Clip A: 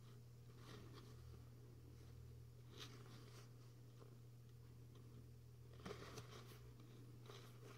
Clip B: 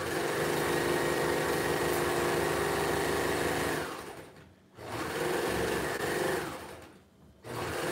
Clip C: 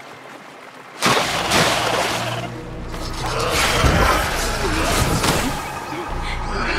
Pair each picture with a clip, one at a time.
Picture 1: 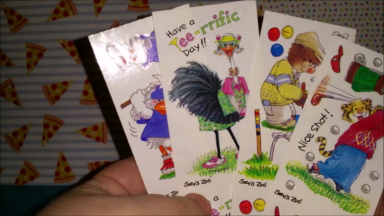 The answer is A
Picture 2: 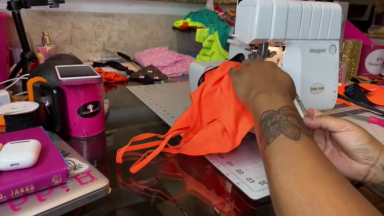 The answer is B